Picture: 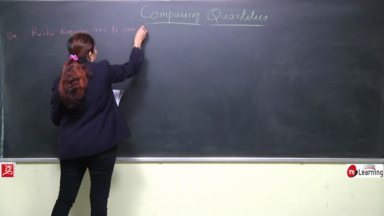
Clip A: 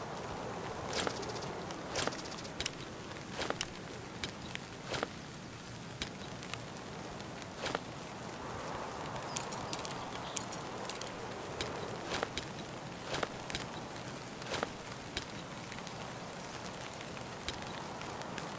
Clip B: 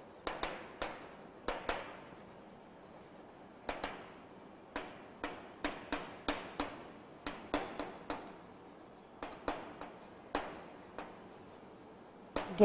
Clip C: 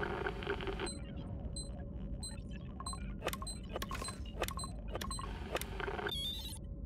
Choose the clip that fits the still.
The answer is B